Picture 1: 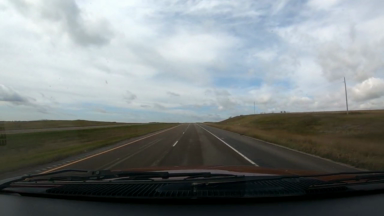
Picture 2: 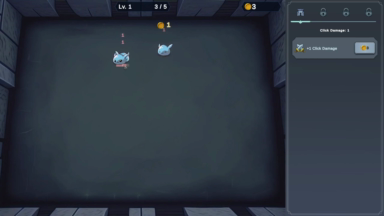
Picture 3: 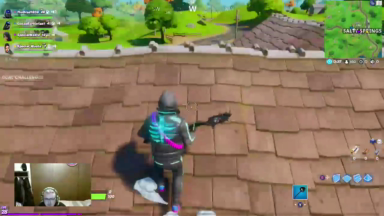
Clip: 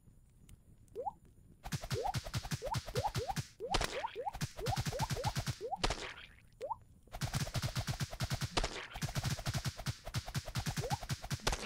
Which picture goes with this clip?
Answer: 2